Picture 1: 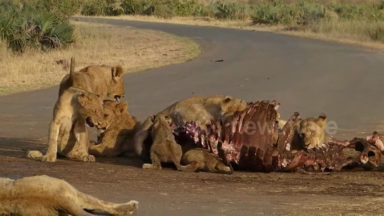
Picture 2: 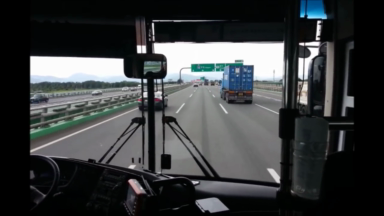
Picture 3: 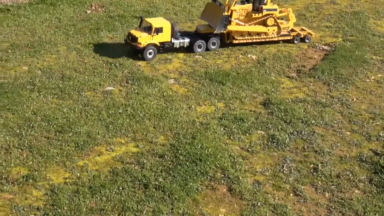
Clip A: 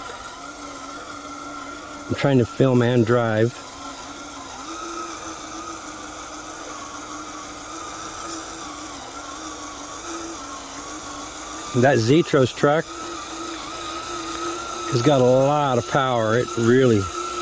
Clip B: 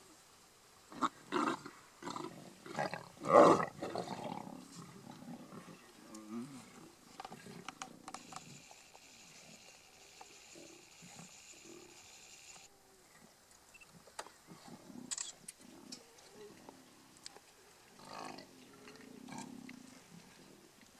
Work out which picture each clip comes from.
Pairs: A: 3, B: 1